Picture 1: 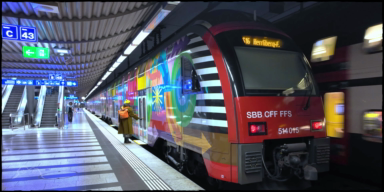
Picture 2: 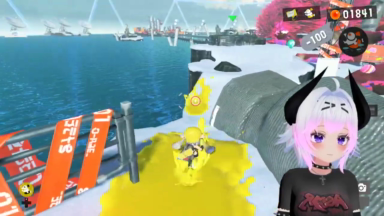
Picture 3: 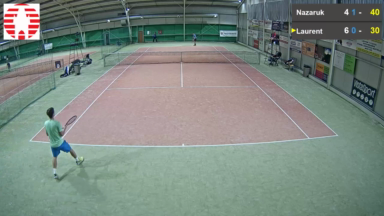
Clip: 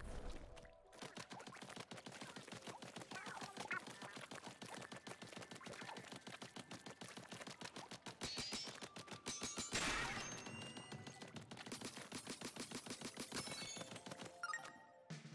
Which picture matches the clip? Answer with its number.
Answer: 2